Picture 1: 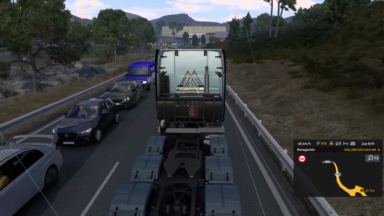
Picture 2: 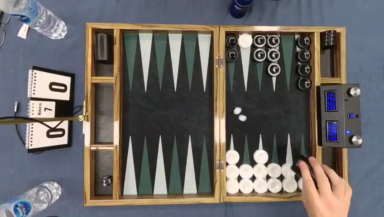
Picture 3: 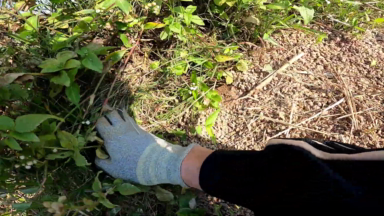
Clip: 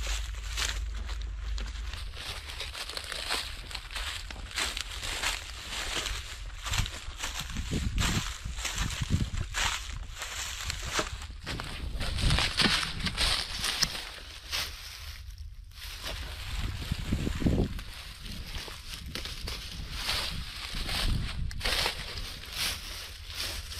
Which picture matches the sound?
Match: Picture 3